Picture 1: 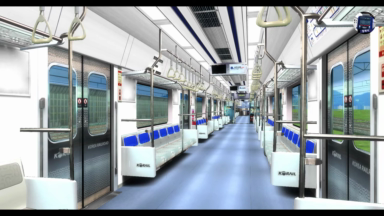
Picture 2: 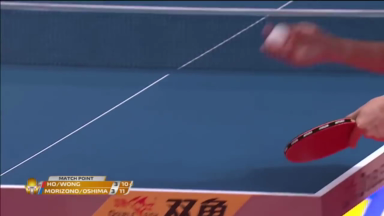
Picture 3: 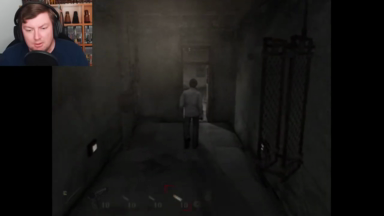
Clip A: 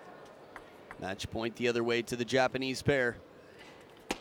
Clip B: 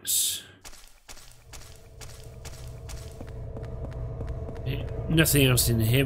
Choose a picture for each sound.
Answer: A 2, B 3